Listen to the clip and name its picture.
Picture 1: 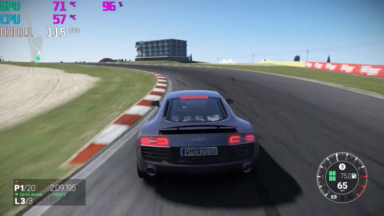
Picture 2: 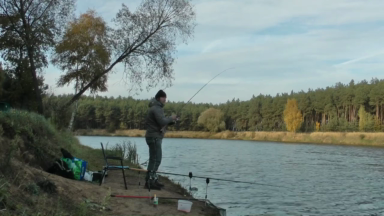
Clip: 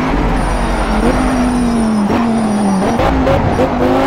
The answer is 1